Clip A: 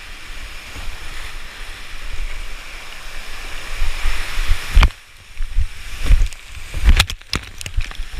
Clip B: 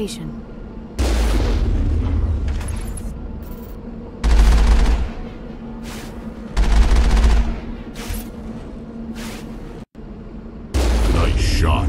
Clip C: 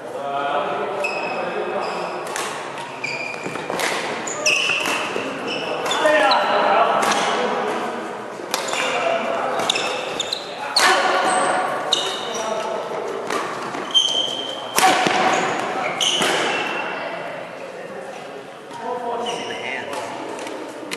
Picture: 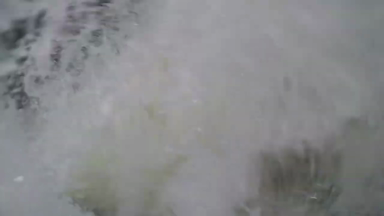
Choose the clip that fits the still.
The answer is A